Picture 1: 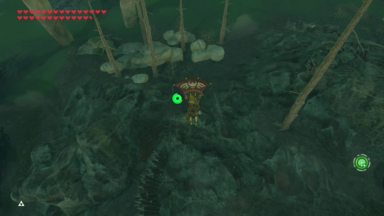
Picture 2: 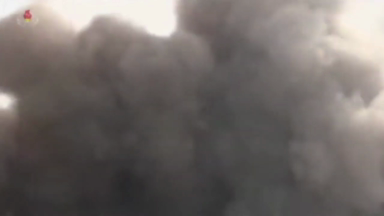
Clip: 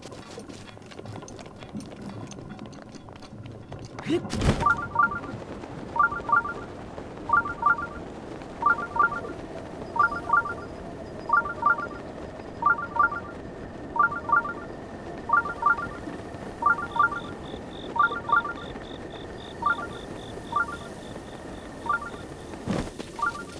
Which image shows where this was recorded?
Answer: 1